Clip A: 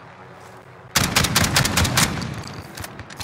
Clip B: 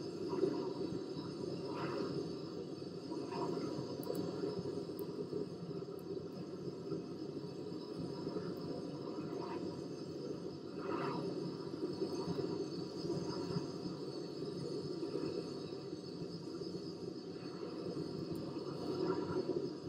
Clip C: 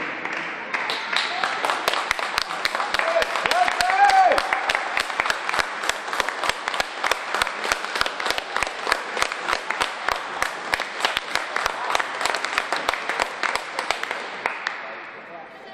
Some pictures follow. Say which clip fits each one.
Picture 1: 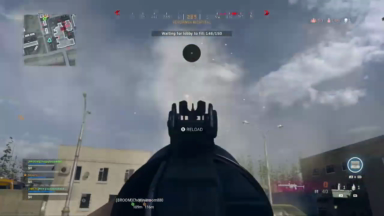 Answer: A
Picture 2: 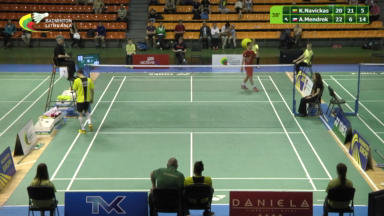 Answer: C